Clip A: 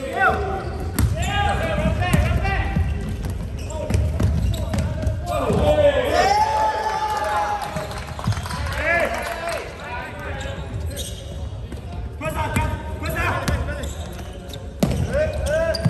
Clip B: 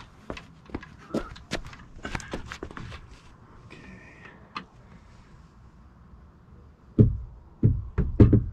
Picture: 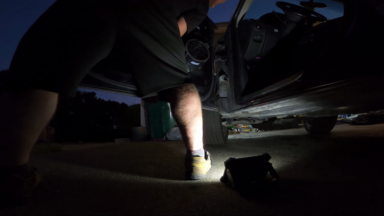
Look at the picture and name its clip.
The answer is B